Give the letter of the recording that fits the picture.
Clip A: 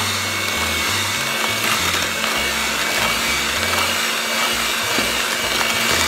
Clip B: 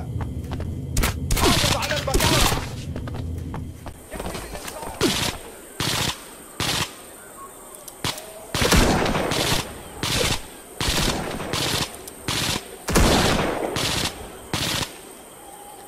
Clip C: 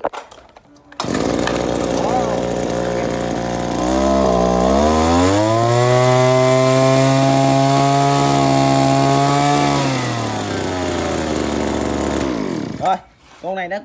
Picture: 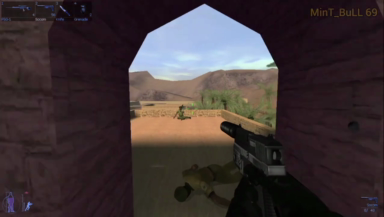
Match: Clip B